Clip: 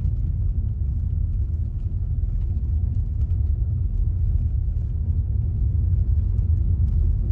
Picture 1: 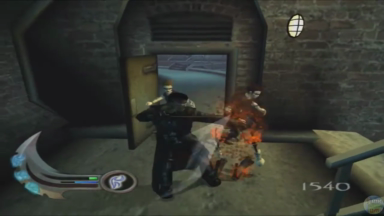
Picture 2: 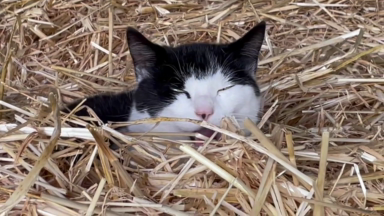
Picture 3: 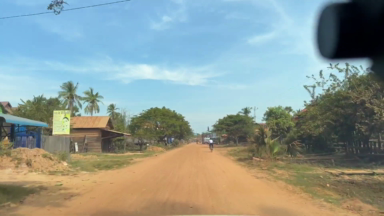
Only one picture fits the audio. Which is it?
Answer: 3